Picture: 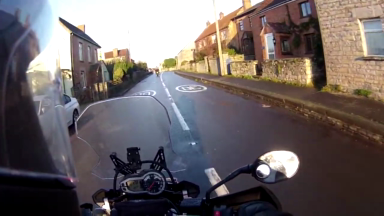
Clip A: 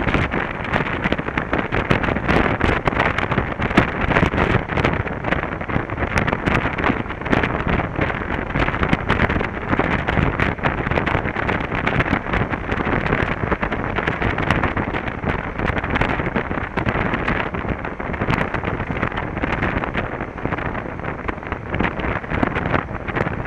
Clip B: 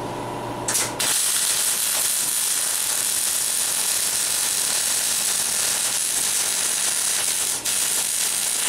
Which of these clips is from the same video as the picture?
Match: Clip A